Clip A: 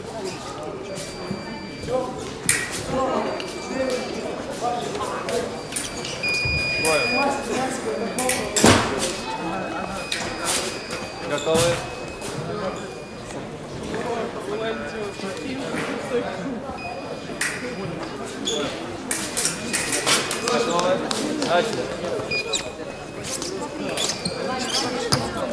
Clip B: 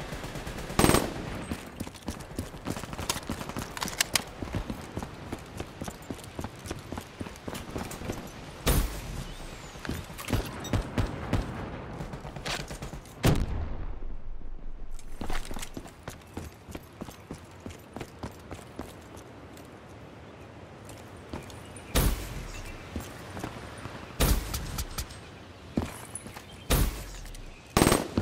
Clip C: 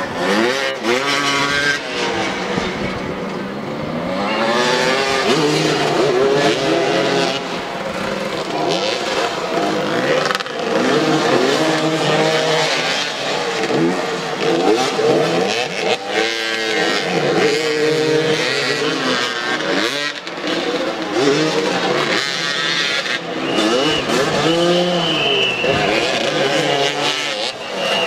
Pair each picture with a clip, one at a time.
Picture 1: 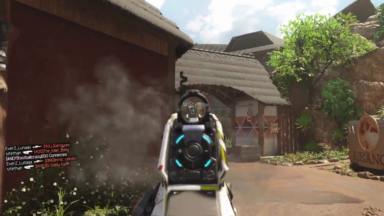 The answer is B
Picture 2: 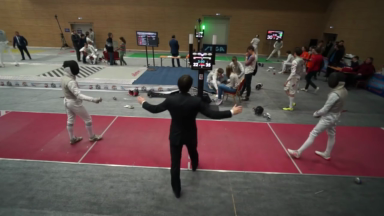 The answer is A